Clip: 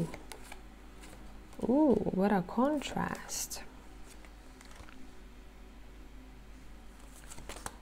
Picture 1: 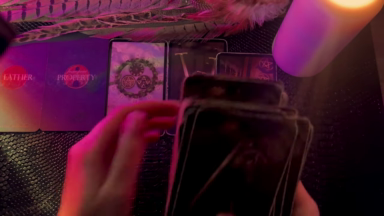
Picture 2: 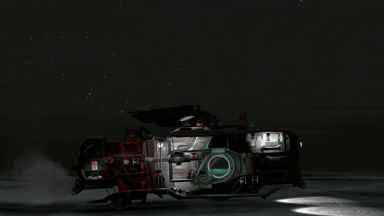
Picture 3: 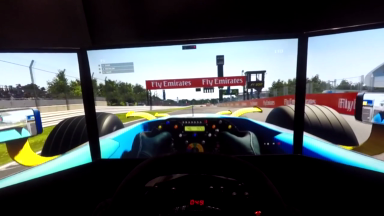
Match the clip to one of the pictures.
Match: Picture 1